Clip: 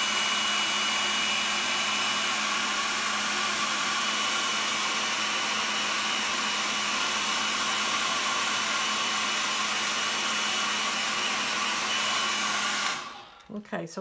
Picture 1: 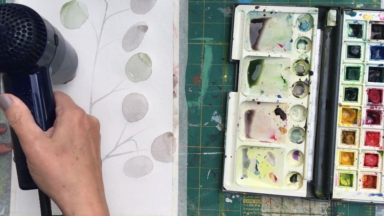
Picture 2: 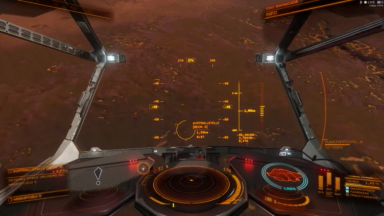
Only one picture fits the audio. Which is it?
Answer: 1